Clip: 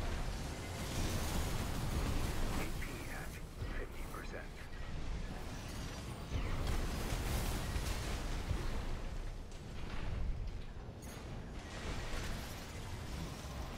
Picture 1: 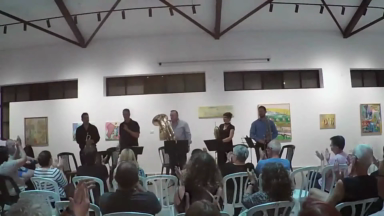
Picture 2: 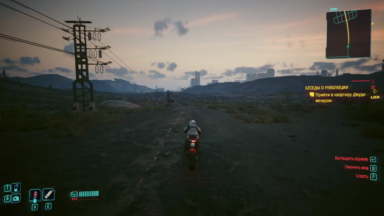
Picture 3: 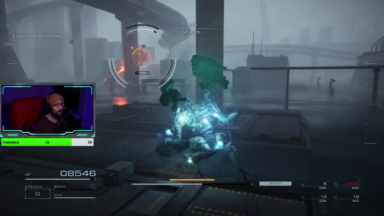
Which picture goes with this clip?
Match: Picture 3